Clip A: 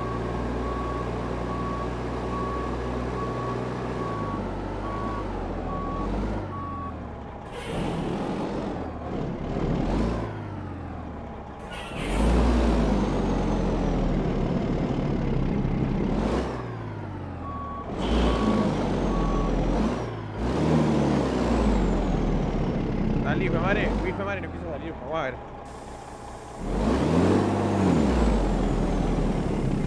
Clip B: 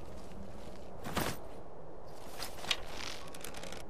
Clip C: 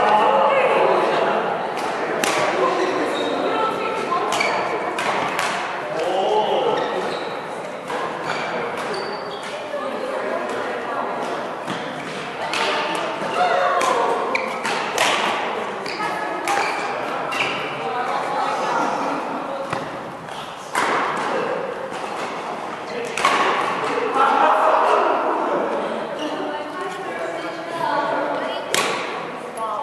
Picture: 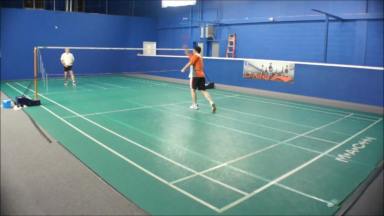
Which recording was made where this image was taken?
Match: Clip C